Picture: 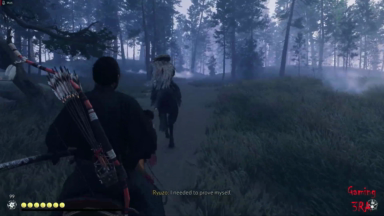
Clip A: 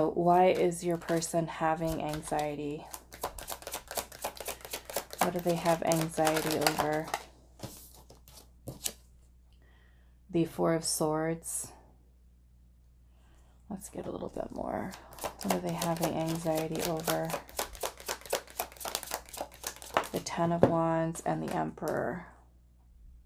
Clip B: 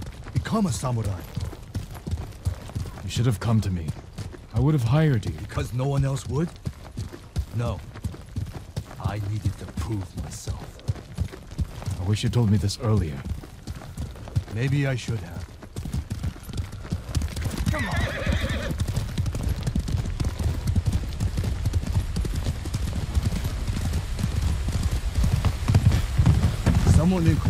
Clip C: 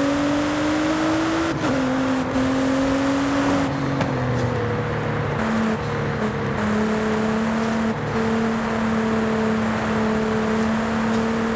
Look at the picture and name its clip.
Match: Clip B